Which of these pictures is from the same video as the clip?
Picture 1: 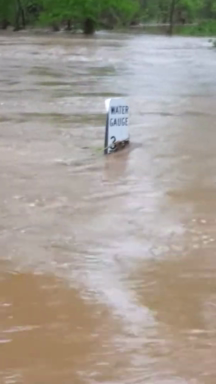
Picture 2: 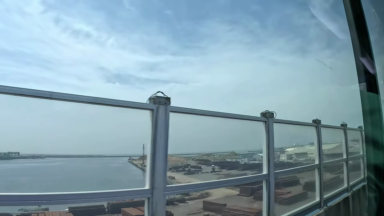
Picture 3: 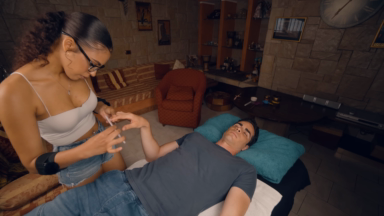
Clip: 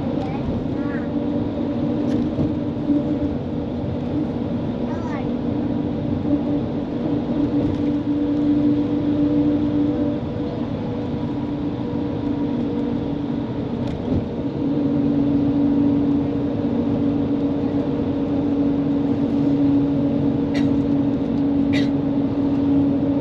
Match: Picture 2